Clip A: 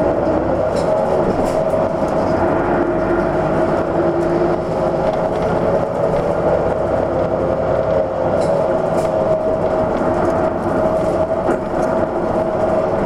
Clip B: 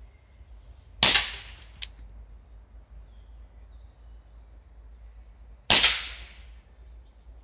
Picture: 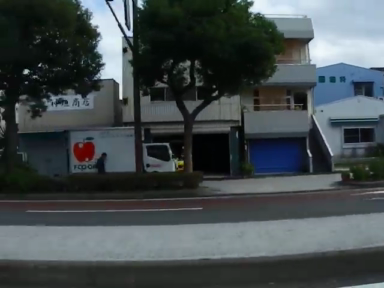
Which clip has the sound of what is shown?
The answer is A